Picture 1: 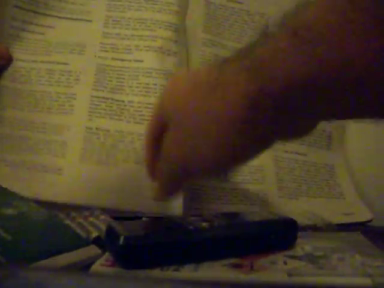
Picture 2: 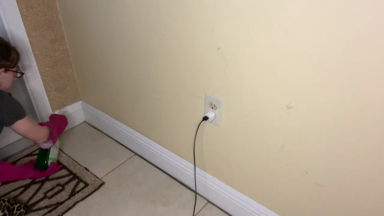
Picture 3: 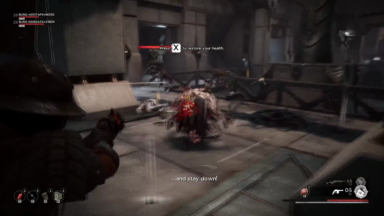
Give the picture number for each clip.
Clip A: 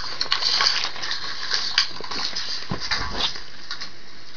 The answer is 1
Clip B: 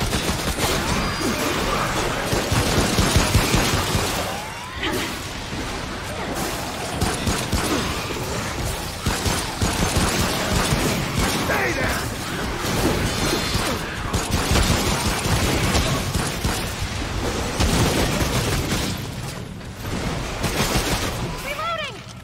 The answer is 3